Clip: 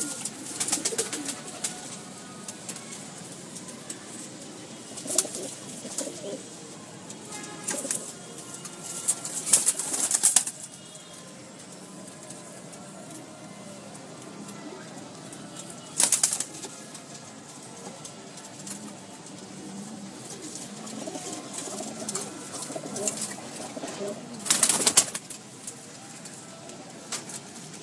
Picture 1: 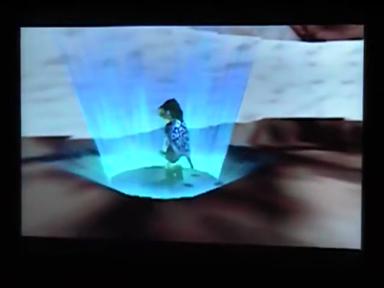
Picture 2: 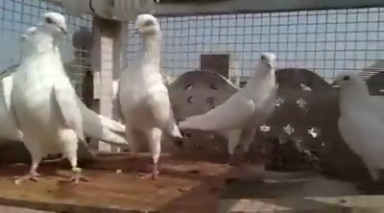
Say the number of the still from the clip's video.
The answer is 2